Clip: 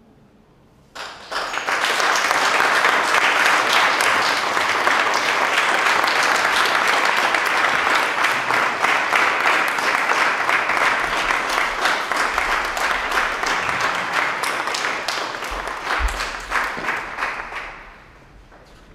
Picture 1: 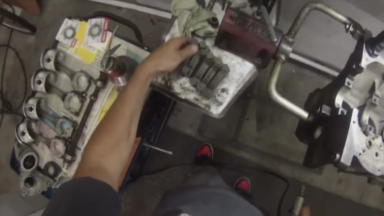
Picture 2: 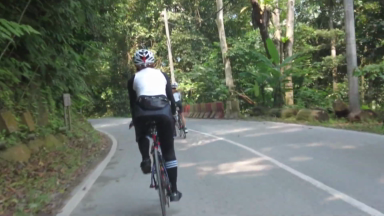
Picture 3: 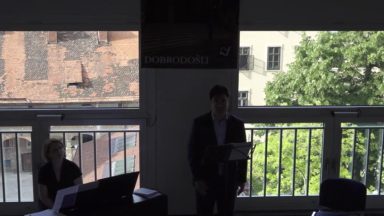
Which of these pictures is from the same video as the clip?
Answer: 3